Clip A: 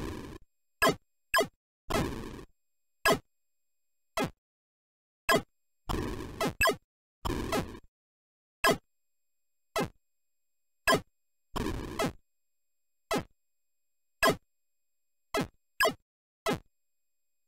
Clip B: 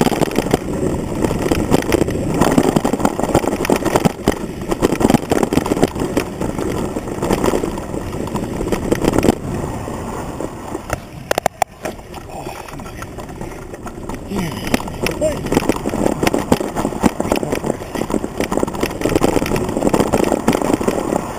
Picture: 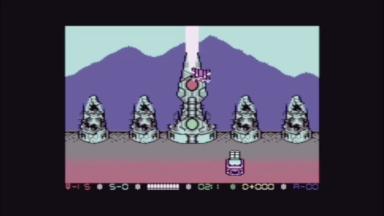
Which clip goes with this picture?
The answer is A